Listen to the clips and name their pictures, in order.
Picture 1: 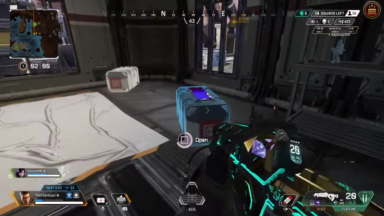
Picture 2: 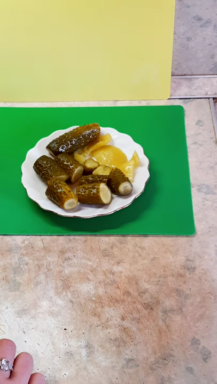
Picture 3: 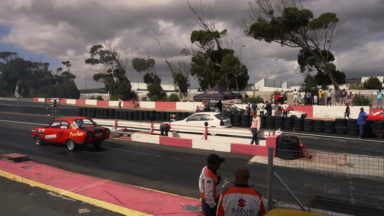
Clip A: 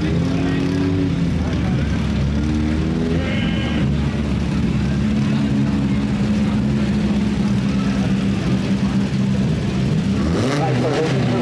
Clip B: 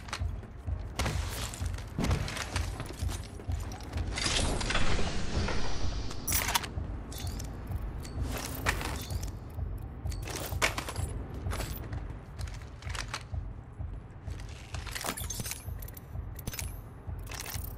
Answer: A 3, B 1